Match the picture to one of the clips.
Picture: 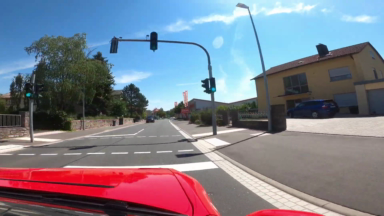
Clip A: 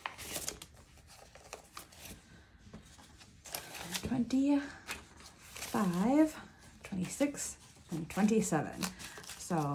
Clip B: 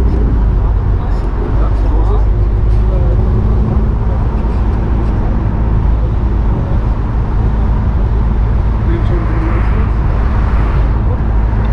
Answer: B